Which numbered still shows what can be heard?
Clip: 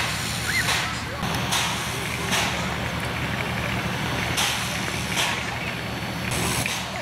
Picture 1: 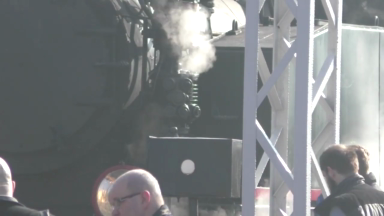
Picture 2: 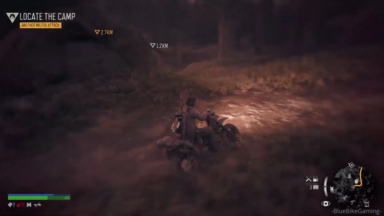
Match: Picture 1